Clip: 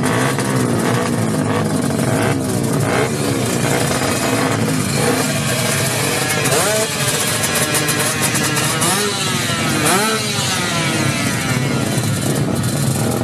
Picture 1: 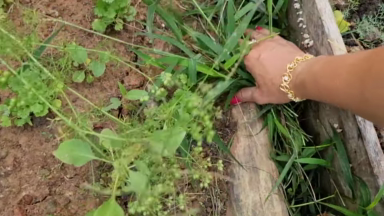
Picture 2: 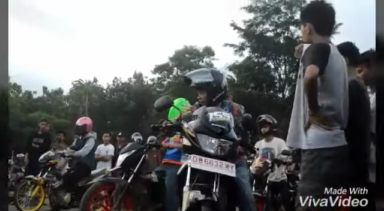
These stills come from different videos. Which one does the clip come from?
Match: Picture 2